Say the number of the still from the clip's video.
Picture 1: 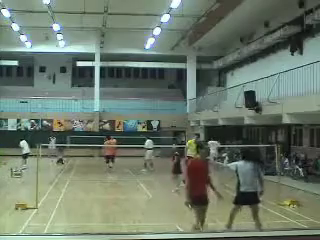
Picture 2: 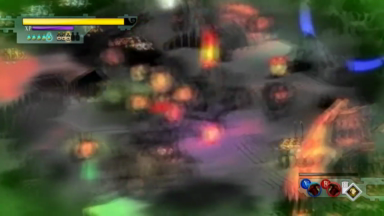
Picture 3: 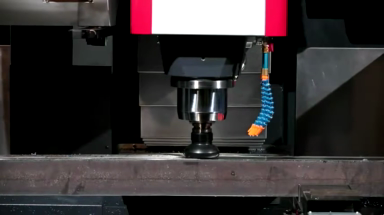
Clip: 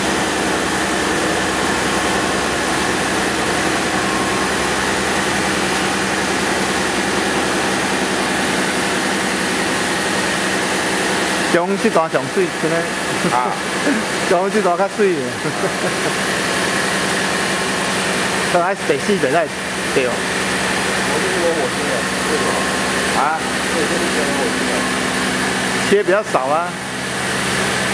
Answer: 3